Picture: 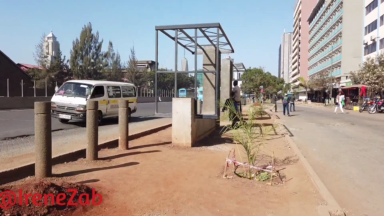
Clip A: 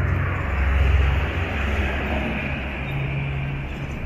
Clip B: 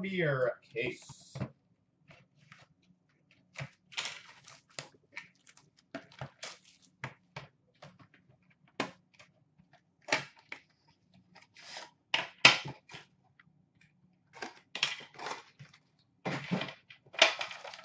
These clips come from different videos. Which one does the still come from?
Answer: A